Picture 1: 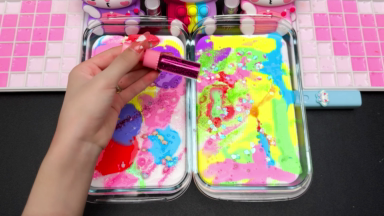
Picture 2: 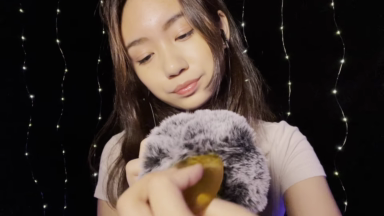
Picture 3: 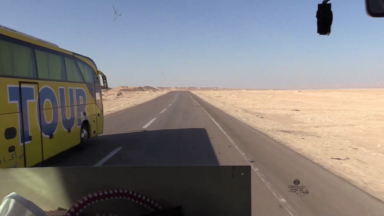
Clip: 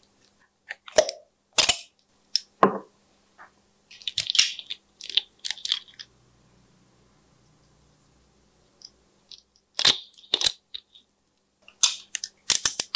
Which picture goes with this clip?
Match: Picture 1